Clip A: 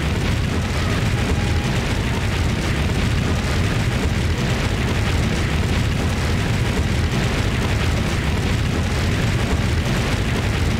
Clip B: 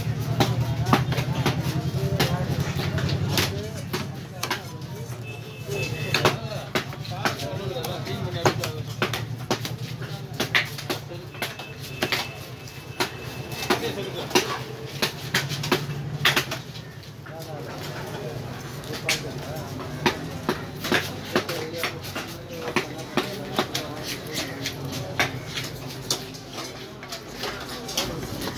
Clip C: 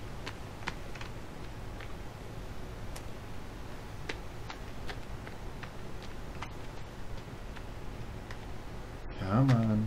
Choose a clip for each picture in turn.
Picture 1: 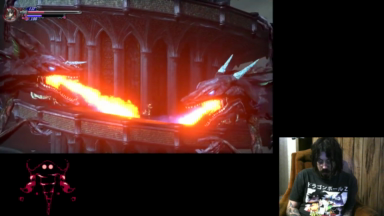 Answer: A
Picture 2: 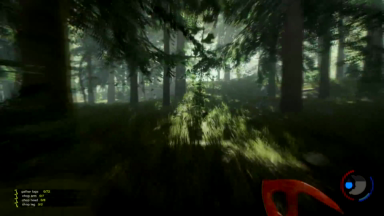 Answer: C